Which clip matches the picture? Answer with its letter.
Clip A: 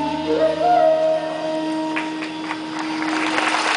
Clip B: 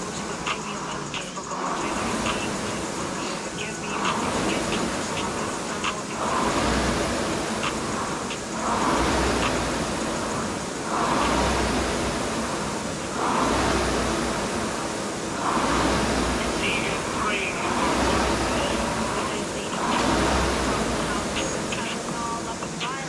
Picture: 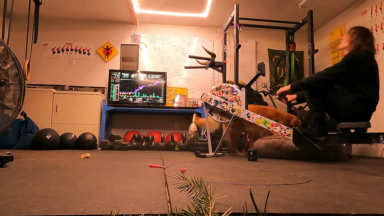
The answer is B